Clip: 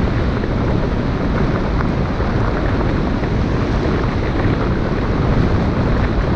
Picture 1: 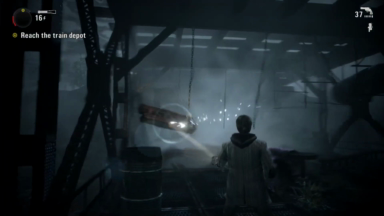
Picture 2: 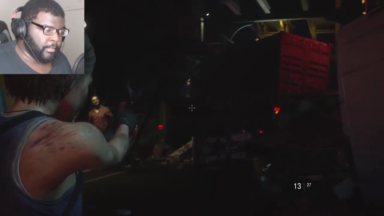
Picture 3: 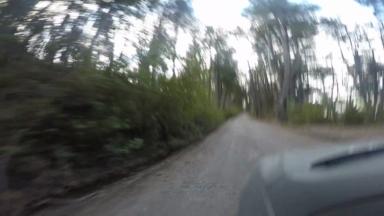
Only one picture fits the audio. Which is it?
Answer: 3